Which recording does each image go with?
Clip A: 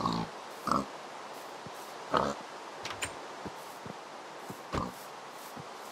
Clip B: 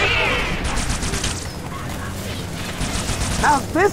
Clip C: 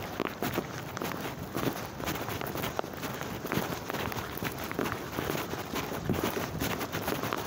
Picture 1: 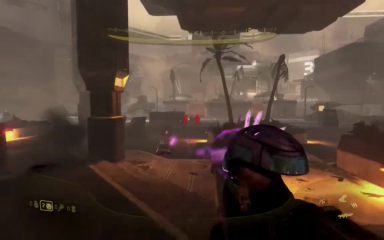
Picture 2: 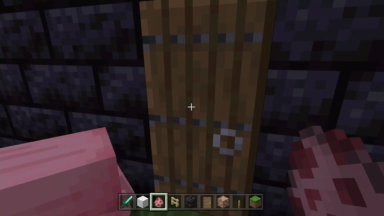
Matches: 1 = B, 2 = A